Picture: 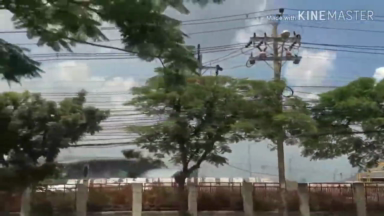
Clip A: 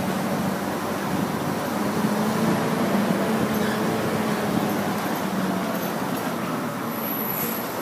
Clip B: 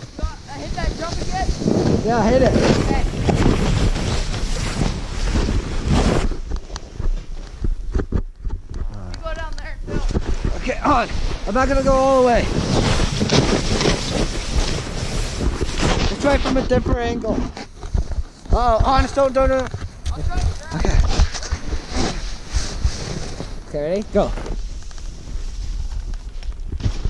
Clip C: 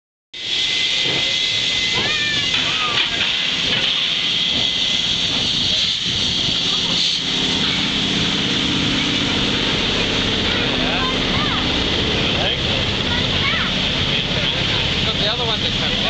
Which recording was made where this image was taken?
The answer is A